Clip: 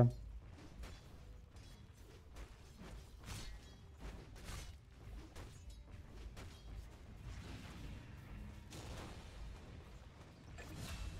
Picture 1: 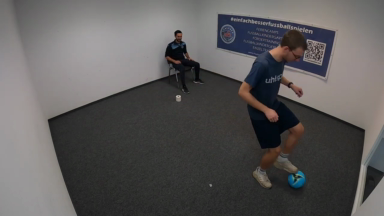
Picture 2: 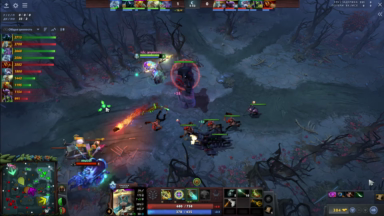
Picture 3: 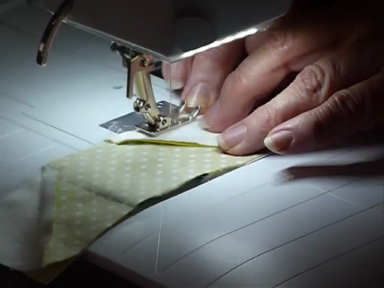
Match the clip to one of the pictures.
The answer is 2